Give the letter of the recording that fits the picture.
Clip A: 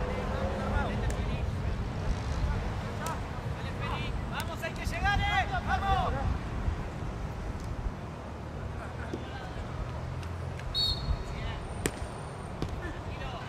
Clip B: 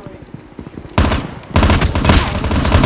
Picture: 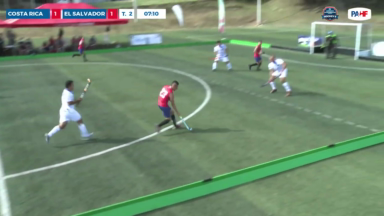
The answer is A